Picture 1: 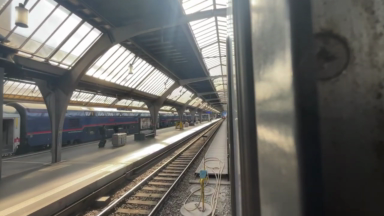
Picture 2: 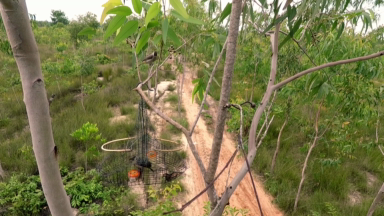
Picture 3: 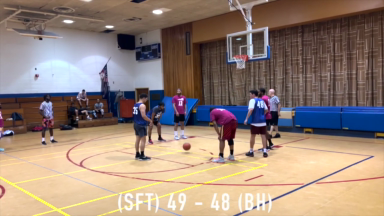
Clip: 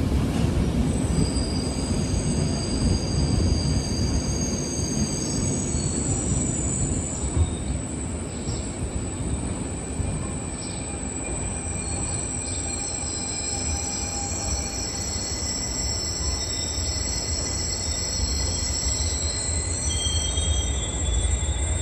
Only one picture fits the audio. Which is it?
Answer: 1